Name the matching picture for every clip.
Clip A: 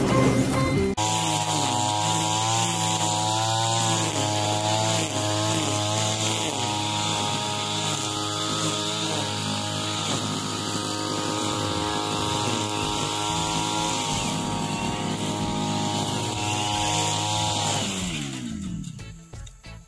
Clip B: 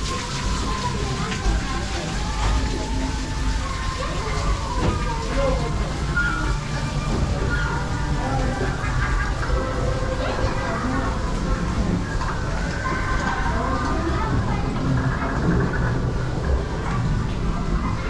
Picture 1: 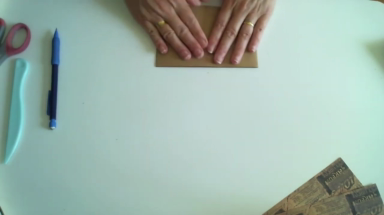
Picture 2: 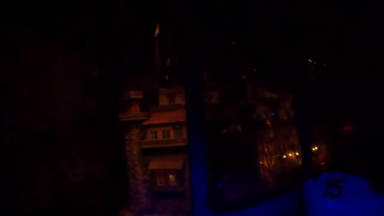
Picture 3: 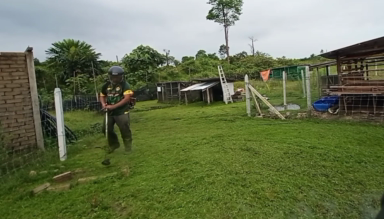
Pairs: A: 3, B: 2